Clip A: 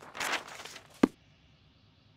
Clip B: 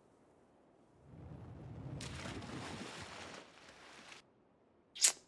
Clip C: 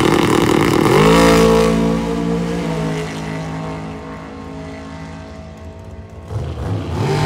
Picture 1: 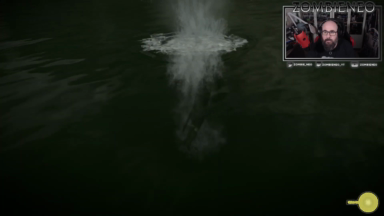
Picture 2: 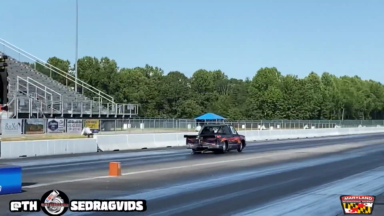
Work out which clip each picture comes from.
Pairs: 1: B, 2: C